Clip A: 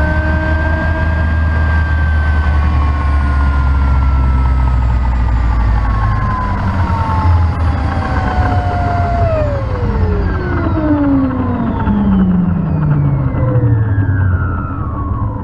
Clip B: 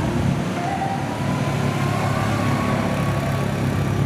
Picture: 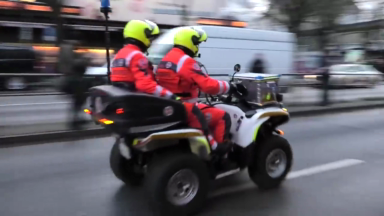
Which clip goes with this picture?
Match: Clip B